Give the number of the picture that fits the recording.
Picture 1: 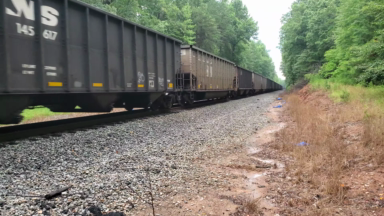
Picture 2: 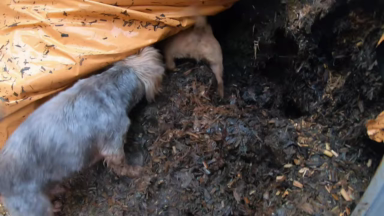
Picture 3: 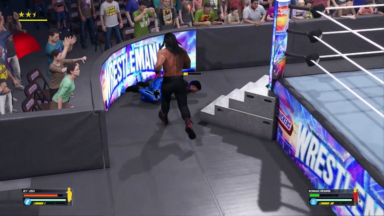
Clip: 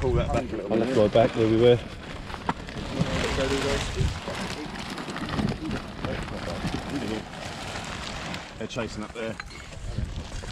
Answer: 2